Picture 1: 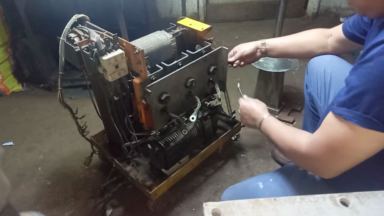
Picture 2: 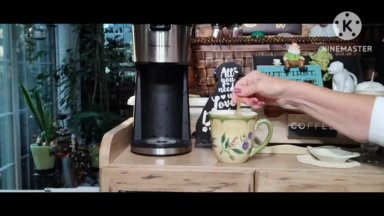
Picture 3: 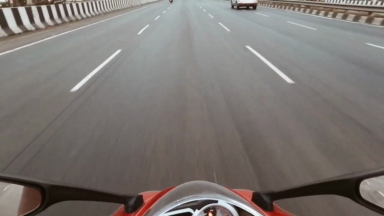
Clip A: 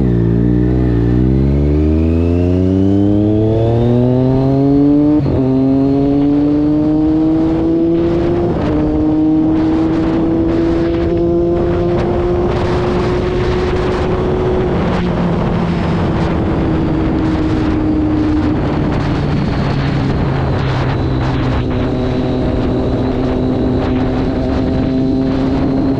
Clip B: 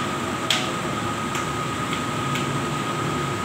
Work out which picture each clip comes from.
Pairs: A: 3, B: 1